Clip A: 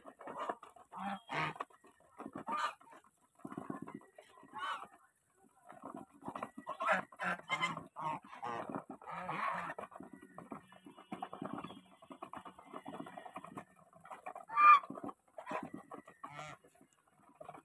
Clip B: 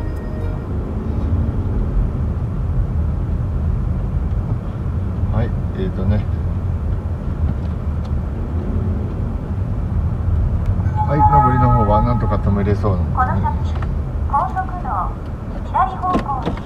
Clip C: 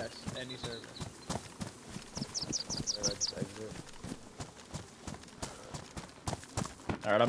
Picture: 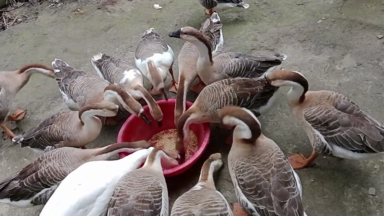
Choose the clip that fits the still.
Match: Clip A